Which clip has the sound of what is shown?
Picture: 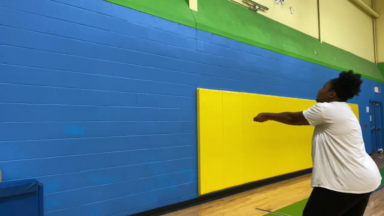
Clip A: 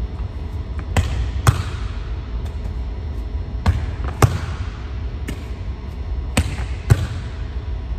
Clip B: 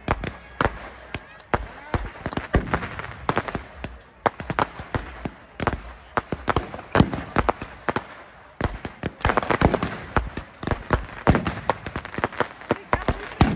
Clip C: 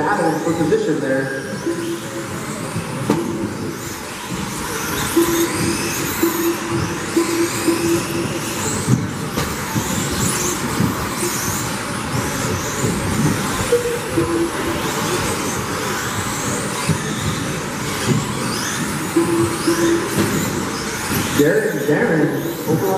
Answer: A